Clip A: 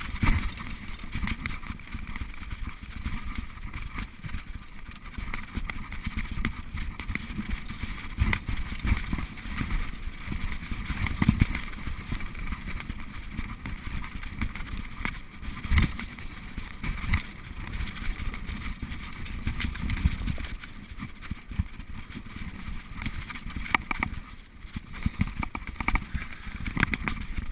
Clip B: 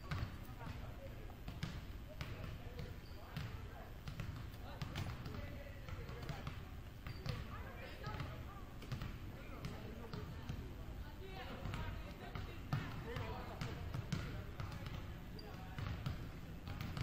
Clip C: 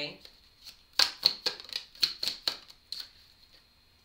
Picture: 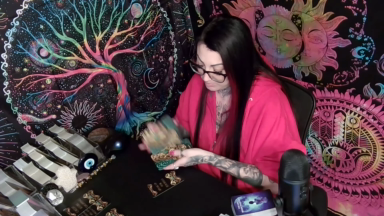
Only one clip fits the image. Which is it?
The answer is C